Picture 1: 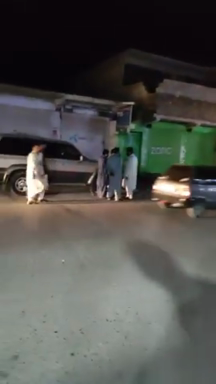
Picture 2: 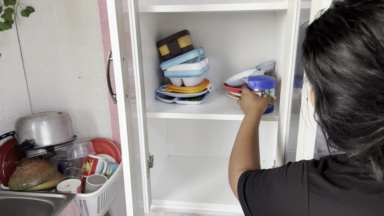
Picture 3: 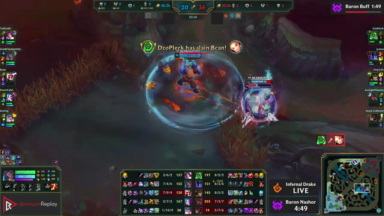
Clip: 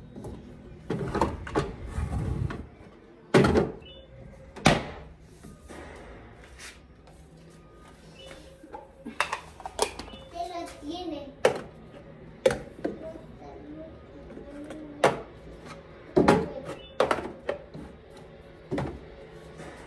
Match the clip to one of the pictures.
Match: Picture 2